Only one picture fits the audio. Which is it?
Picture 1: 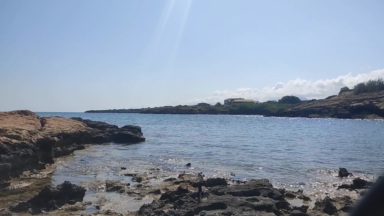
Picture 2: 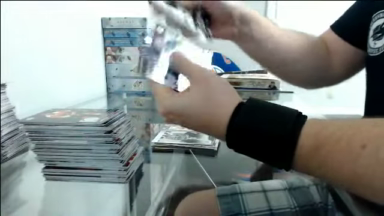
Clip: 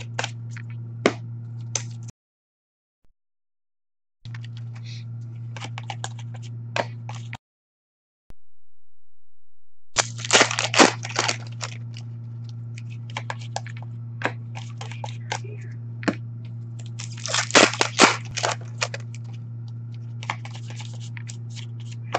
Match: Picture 2